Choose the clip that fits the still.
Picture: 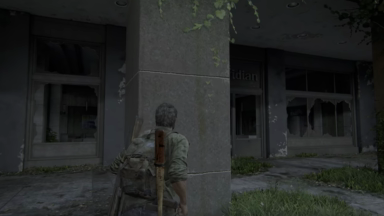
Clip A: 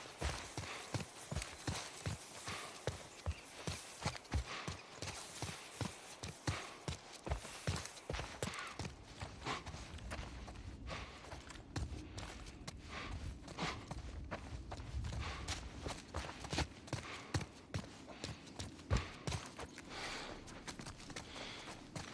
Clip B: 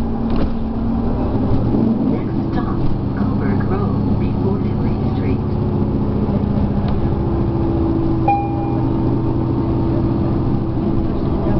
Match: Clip A